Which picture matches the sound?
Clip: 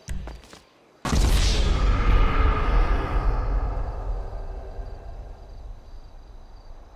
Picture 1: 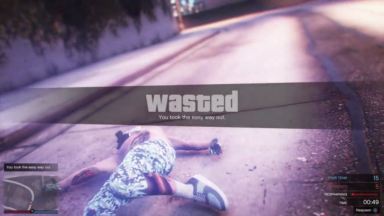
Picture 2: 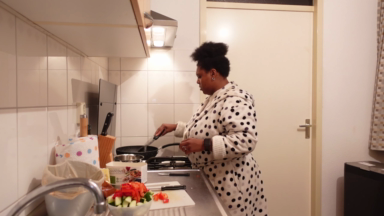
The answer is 1